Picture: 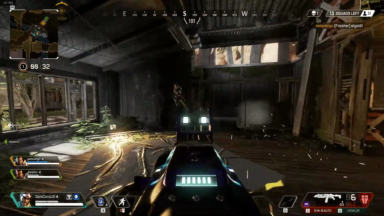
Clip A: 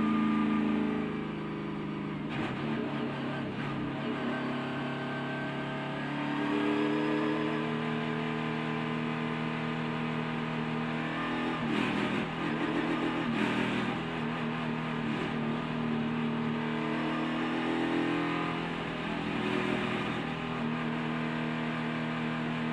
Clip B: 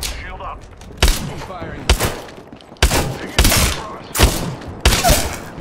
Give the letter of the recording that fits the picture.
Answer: B